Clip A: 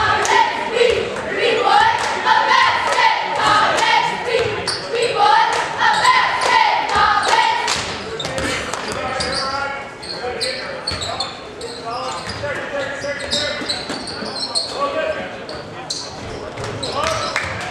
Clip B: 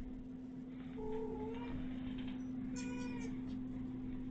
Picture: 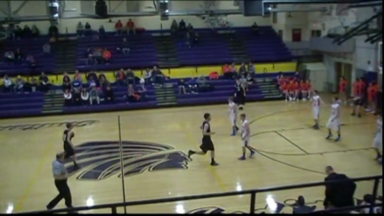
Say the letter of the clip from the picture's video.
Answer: A